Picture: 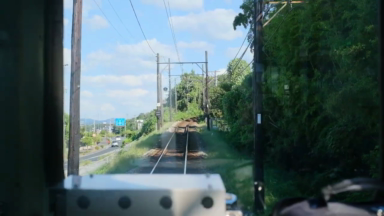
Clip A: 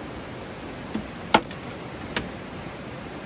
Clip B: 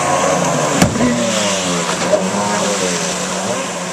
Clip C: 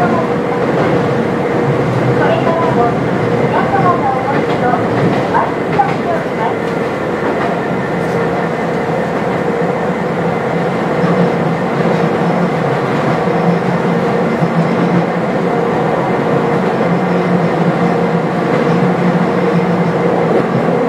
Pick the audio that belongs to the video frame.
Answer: C